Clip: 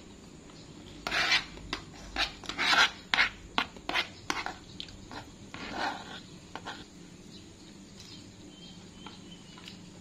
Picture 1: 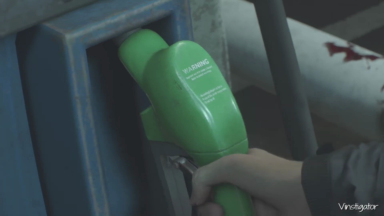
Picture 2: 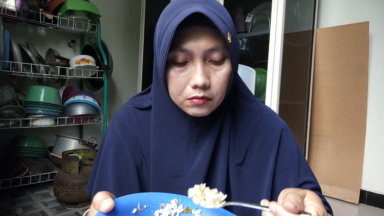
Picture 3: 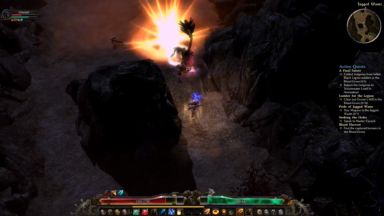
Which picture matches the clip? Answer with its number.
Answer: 2